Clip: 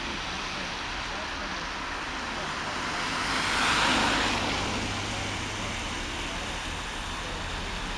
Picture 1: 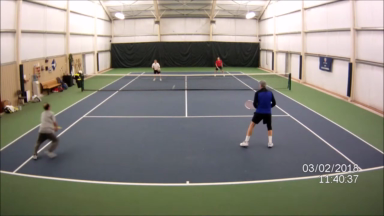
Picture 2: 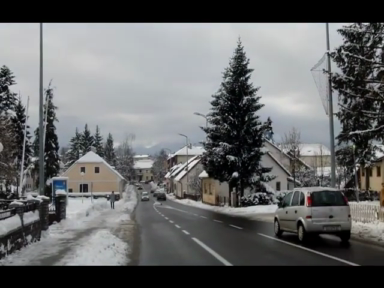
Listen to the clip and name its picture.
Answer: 2